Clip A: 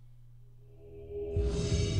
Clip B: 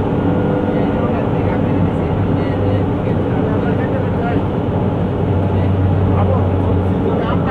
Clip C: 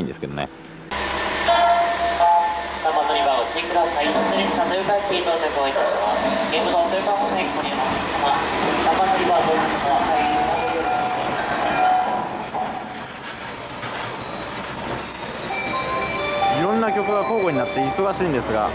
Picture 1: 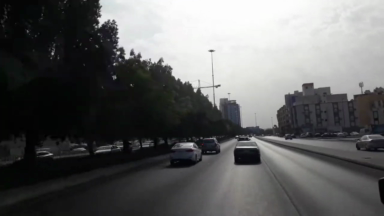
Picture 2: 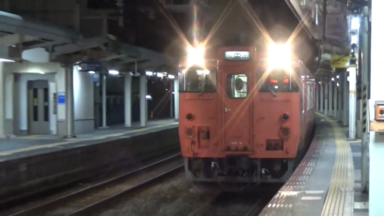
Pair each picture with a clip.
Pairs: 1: B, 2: C